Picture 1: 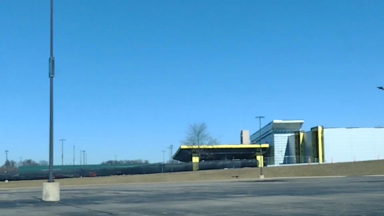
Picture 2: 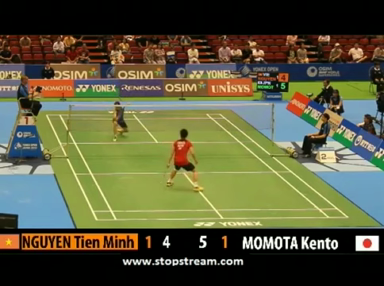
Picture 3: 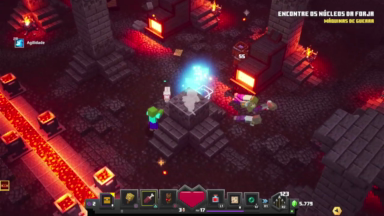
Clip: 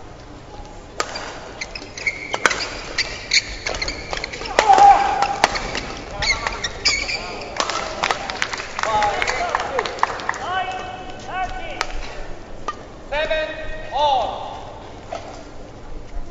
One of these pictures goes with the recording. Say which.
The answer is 2